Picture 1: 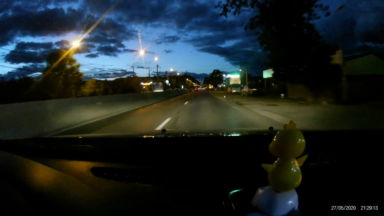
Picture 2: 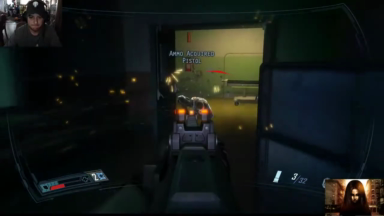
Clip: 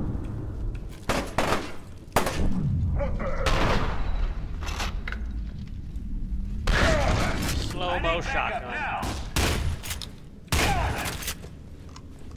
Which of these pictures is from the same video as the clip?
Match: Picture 2